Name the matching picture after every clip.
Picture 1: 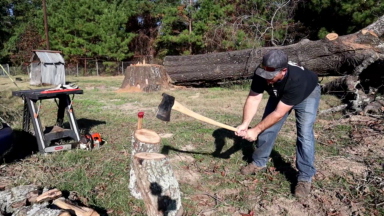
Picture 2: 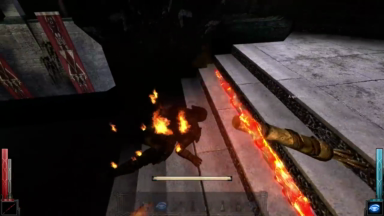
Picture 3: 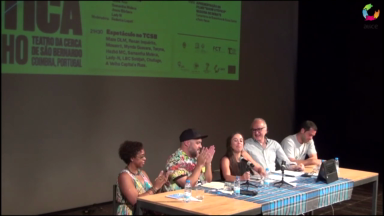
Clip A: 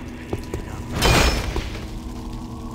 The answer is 2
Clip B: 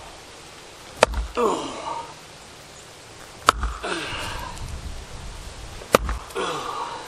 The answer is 1